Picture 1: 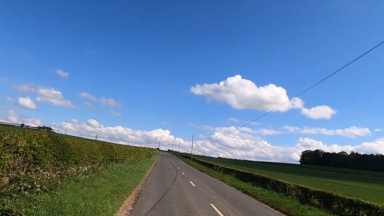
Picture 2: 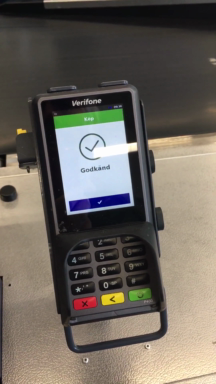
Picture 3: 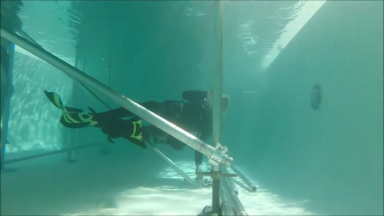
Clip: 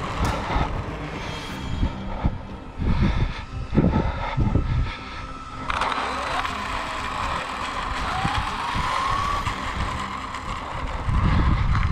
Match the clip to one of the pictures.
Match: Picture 1